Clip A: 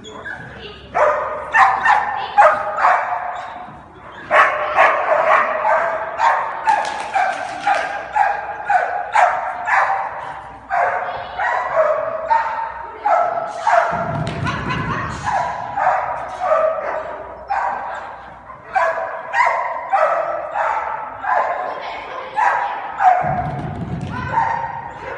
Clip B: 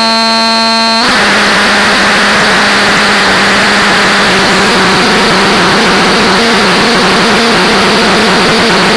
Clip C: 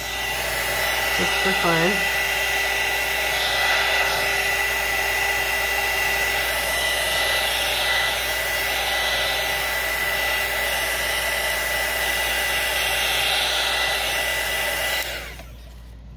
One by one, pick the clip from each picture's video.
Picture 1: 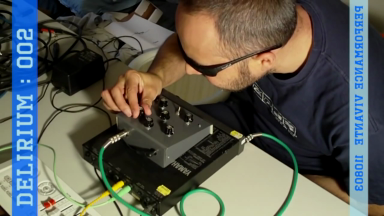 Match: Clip B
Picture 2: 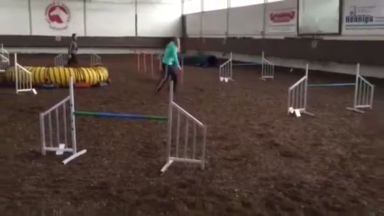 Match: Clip A